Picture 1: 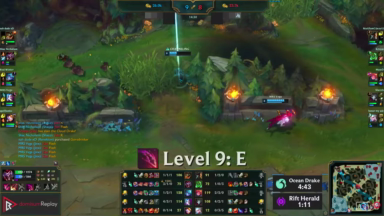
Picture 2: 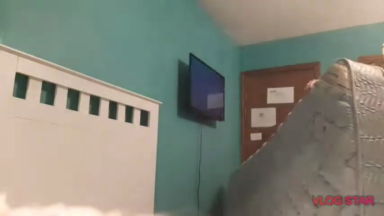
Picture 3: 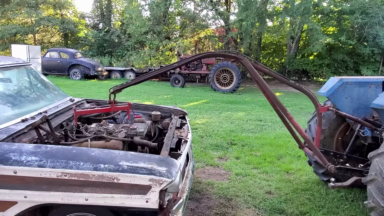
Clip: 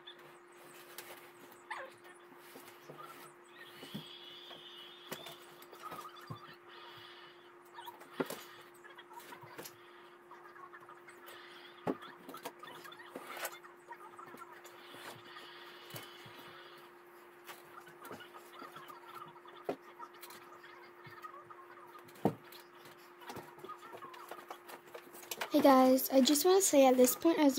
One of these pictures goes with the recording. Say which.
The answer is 2